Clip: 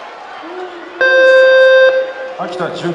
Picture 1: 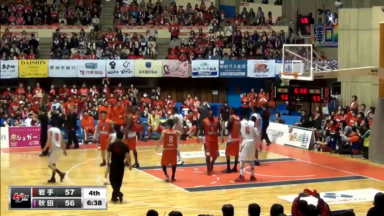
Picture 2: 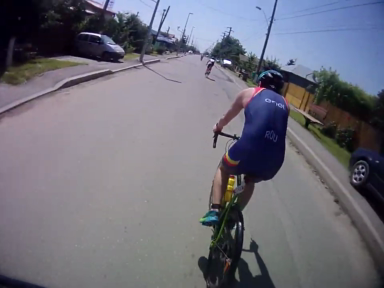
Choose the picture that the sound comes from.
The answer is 1